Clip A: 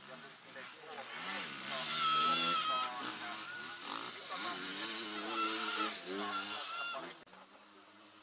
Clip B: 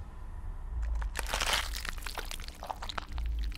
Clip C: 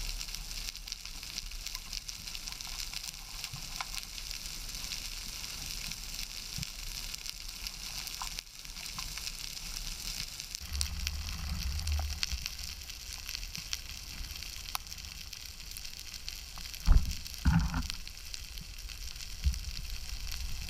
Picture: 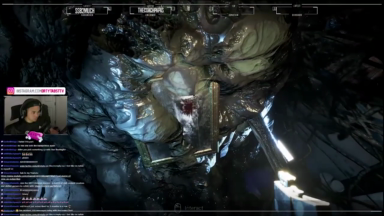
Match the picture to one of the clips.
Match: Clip B